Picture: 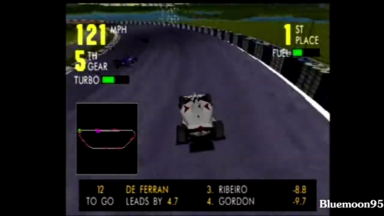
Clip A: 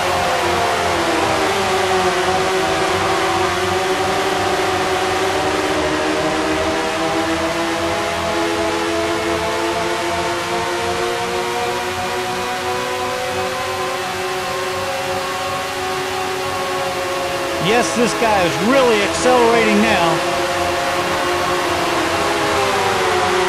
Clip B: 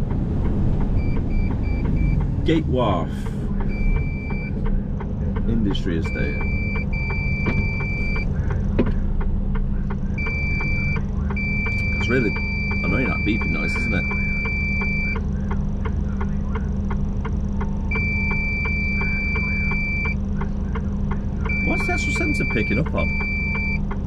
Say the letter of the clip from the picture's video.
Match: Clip A